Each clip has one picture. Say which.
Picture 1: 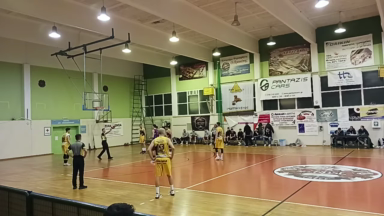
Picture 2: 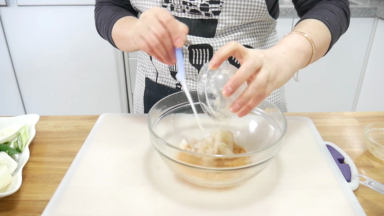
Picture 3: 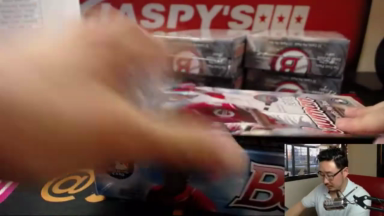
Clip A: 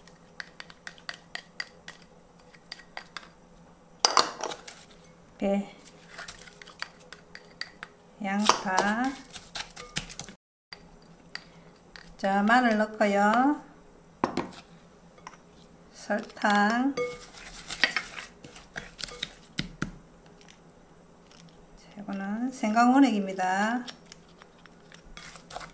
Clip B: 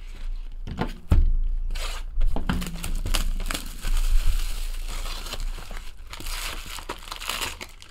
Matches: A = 2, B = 3